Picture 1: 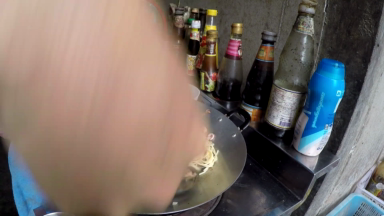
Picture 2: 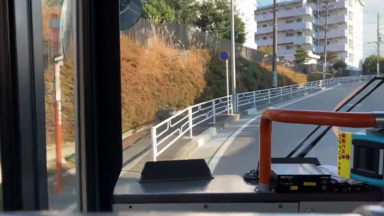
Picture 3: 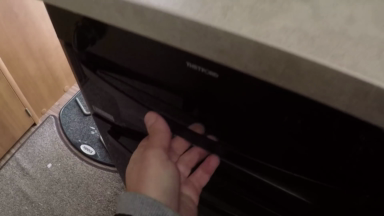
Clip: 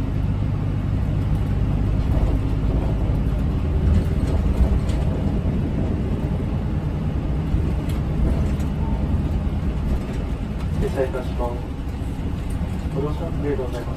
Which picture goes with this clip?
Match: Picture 2